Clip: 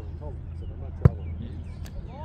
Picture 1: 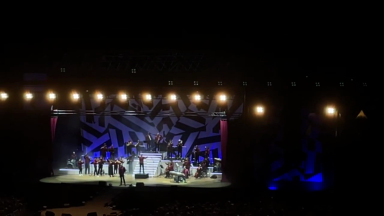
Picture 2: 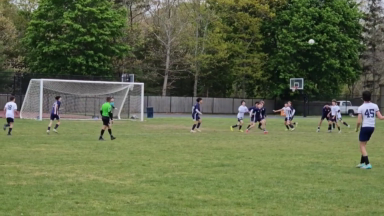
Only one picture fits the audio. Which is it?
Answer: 2